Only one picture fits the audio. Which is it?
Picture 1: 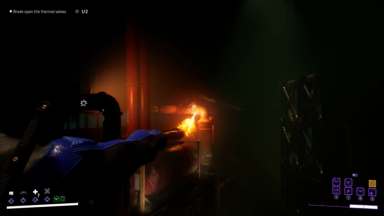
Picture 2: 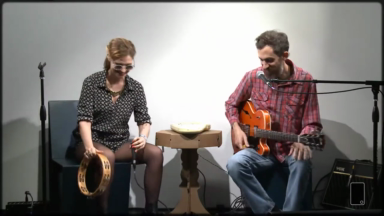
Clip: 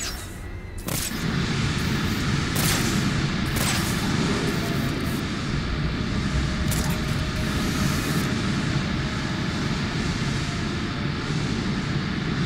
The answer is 1